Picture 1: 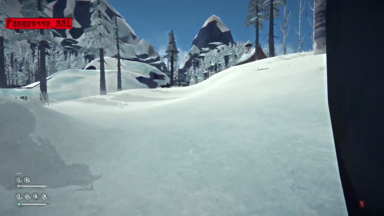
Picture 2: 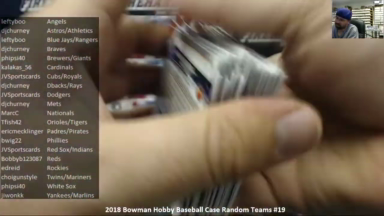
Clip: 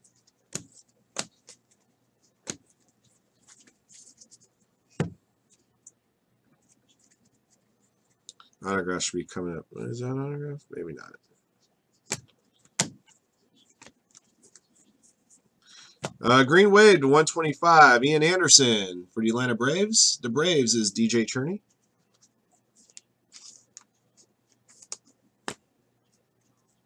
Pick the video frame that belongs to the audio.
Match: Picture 2